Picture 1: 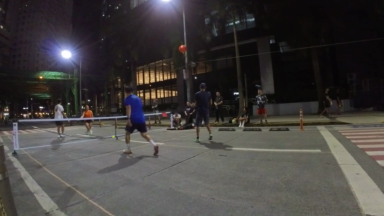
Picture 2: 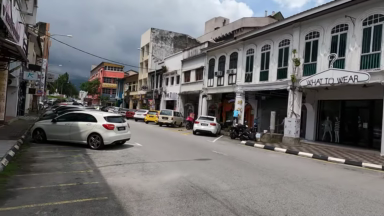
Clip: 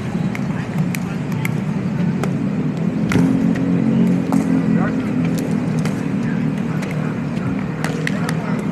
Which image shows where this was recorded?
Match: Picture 1